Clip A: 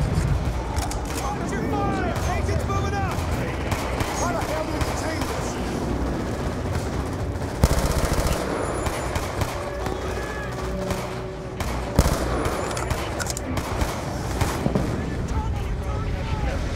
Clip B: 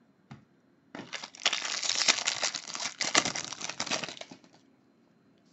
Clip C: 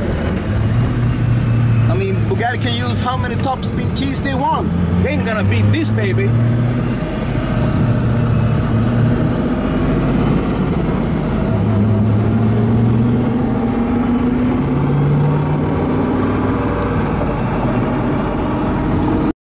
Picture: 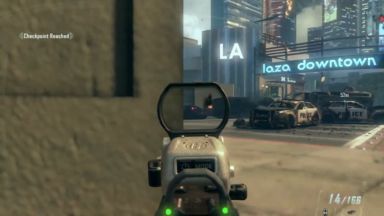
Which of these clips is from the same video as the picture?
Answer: A